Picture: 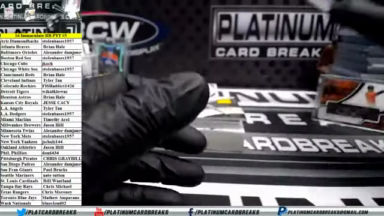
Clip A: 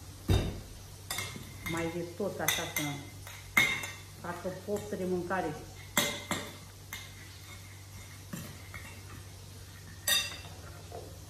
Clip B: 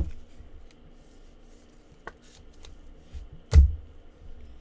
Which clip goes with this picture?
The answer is B